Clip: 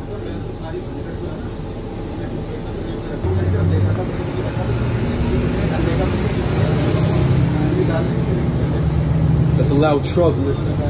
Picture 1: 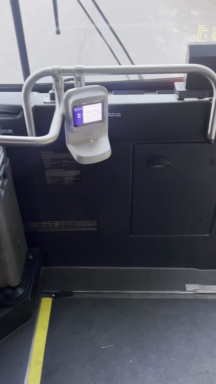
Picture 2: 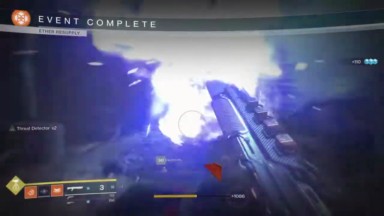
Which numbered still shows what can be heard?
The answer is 1